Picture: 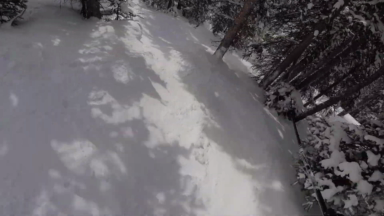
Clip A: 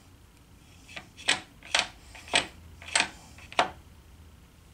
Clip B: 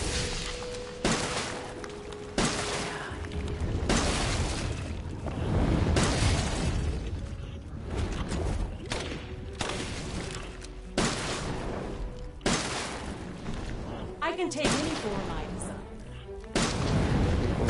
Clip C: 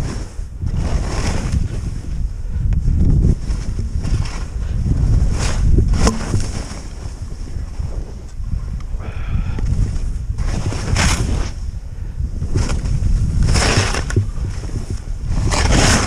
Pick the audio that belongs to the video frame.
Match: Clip C